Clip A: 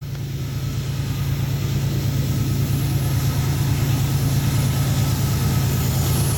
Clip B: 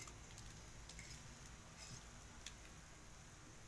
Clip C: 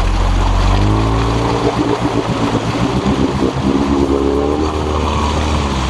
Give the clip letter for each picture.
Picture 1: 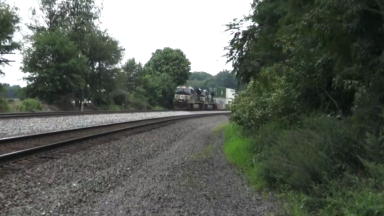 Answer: A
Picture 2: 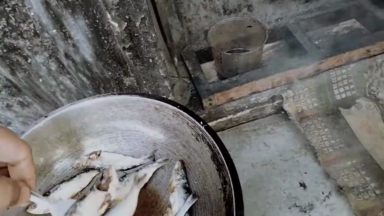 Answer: B